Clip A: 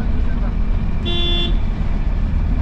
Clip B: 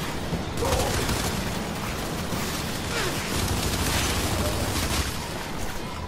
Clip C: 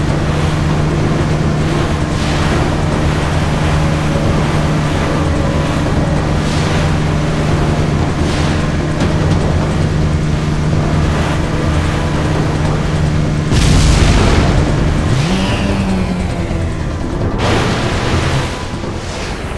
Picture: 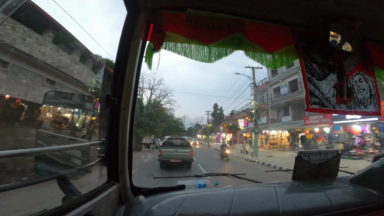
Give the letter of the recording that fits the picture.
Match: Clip A